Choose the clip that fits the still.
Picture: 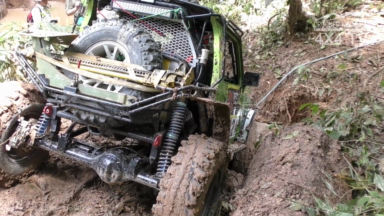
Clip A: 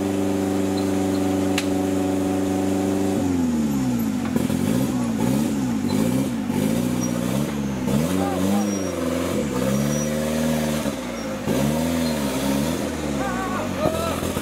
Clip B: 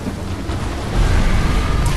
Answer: A